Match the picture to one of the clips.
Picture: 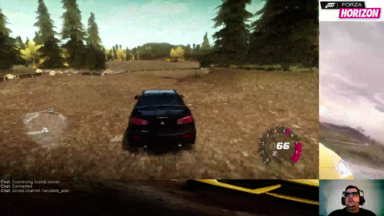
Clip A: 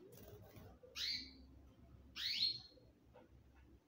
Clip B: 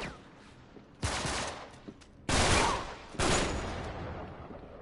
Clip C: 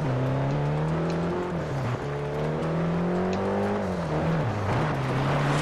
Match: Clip C